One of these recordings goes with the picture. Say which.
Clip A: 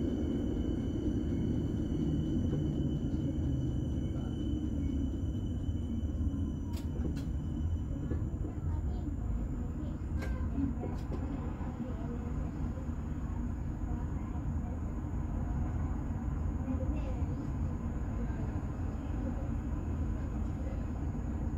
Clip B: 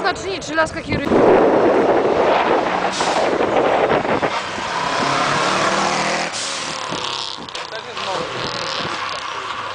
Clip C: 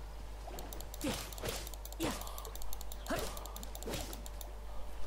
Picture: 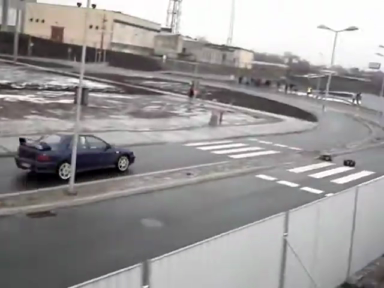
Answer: B